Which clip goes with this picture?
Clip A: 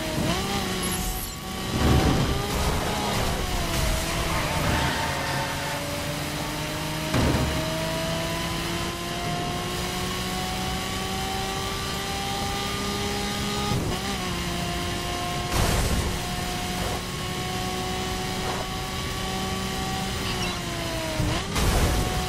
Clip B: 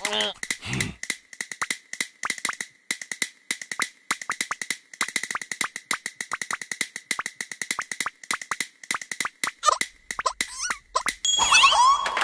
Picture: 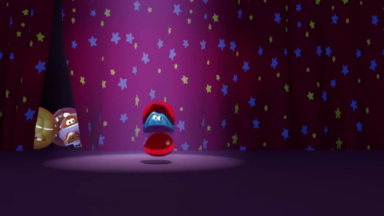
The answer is B